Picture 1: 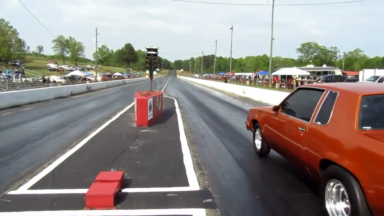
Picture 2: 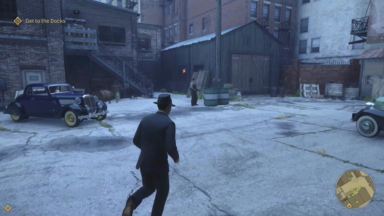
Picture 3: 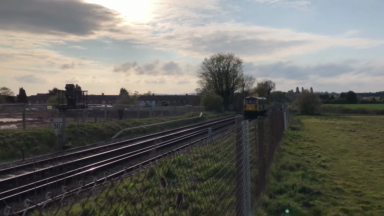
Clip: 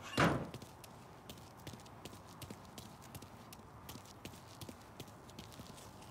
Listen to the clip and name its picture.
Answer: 2